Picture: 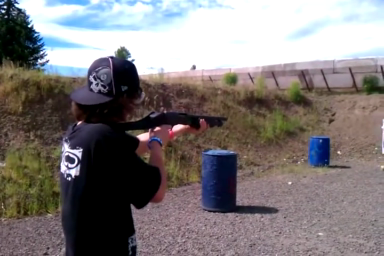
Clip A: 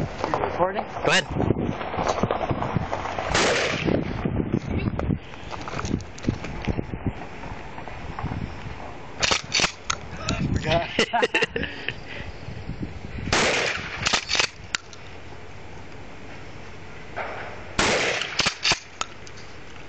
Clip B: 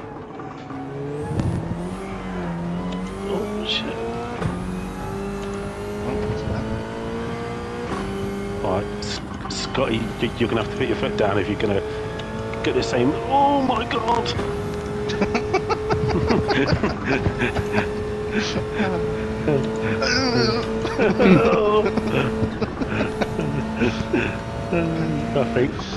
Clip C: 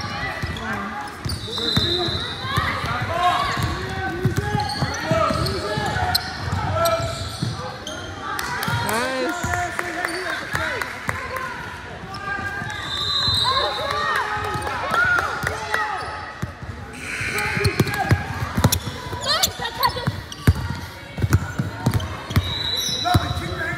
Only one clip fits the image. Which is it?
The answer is A